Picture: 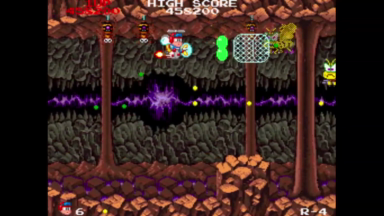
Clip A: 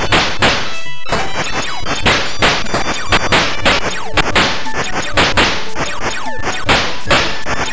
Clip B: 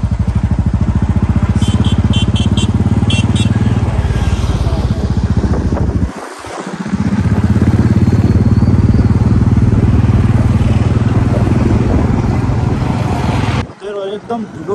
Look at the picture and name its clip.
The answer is A